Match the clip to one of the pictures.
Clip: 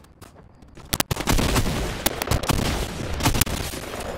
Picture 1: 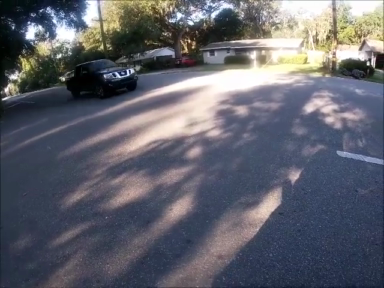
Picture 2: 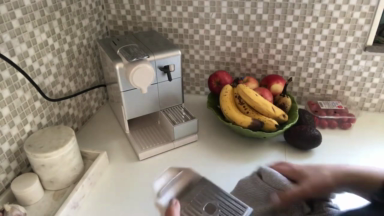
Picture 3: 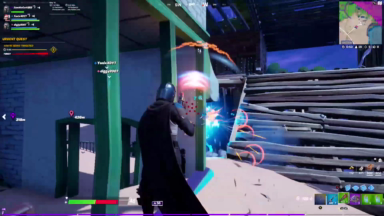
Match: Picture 3